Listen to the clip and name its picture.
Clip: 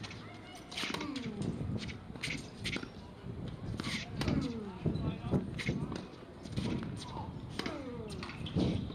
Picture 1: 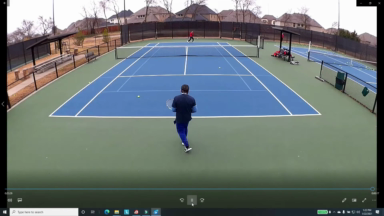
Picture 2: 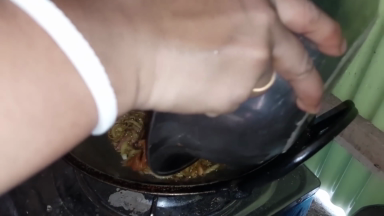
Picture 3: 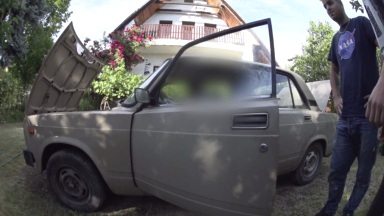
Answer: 1